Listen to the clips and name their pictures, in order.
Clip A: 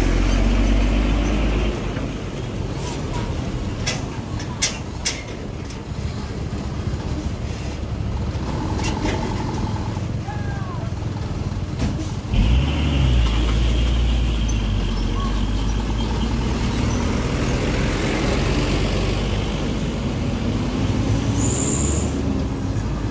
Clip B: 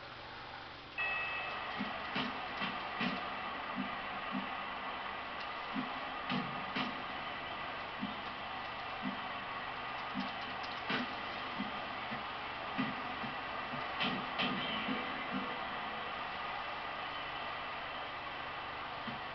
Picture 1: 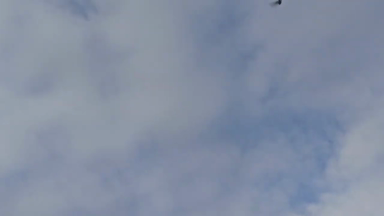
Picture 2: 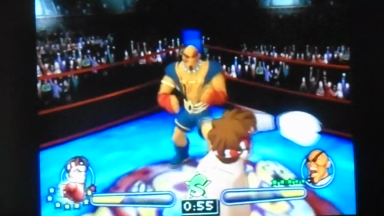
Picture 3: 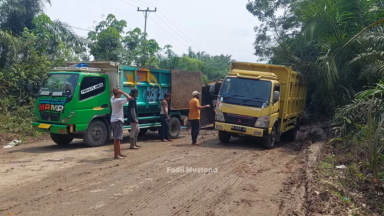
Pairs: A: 3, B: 2